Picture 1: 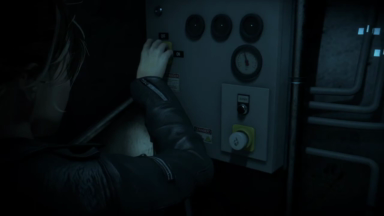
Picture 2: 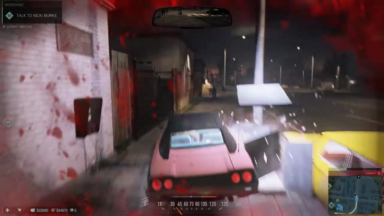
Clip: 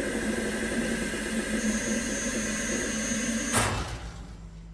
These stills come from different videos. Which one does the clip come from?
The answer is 1